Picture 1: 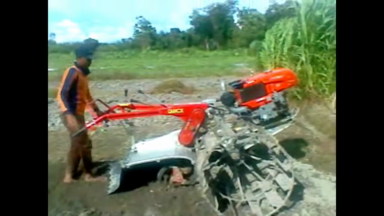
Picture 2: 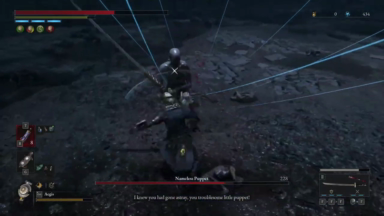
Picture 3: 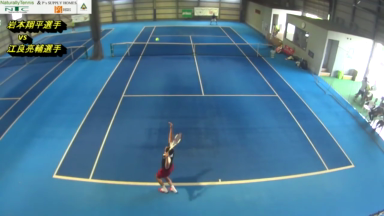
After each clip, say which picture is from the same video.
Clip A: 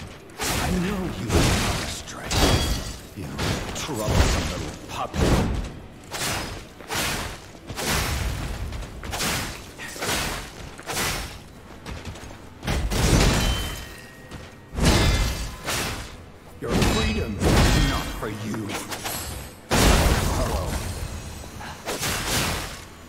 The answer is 2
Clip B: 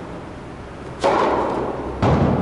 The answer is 3